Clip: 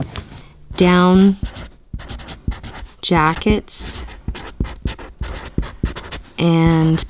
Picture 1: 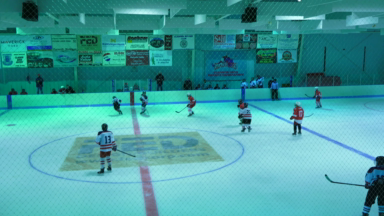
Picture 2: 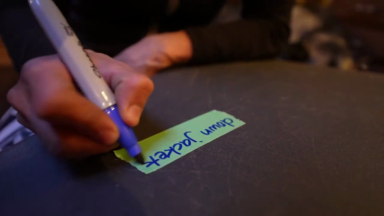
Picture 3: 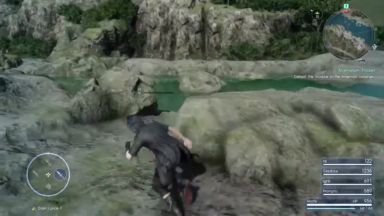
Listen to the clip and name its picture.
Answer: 2